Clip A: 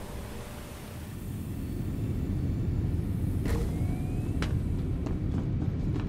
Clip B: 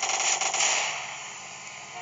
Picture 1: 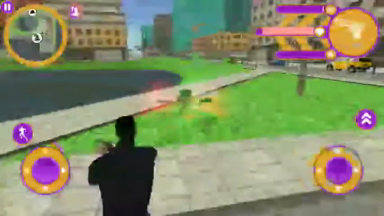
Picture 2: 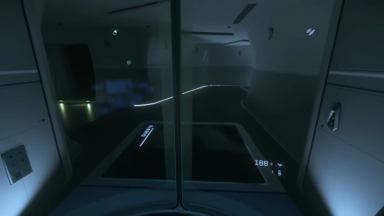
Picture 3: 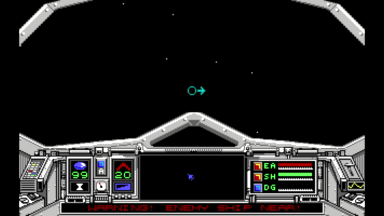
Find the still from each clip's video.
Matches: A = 2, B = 1